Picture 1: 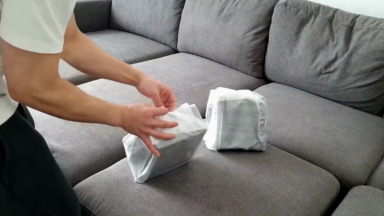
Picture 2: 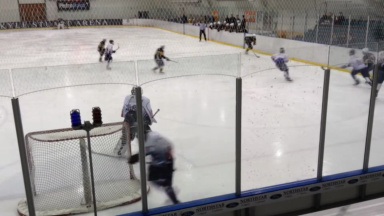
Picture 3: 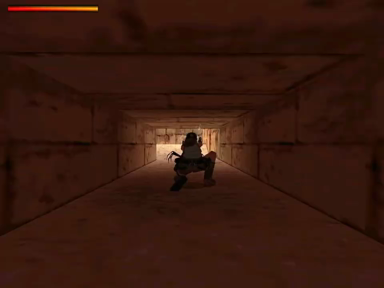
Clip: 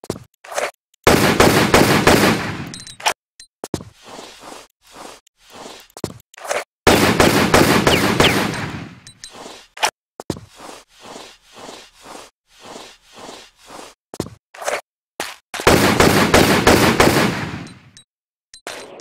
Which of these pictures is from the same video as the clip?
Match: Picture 3